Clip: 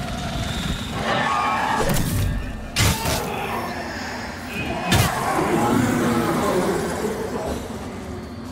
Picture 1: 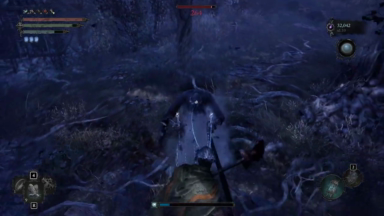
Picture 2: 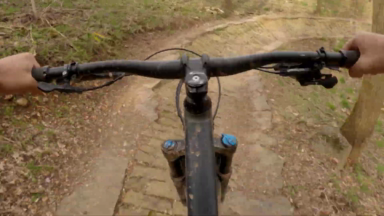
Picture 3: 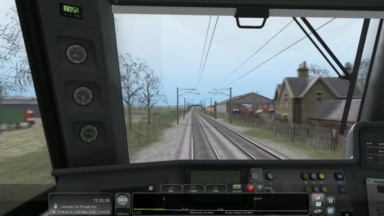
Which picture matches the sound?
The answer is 1